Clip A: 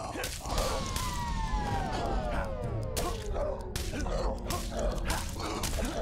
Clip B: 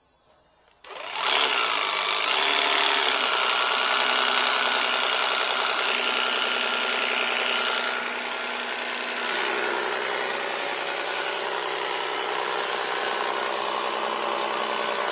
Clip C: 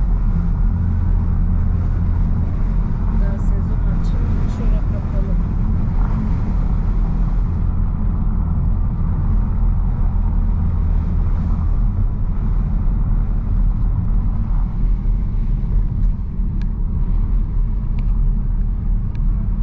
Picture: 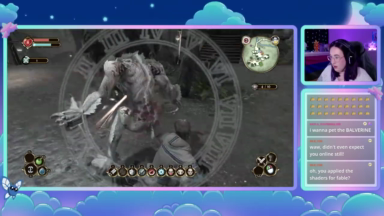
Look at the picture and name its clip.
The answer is A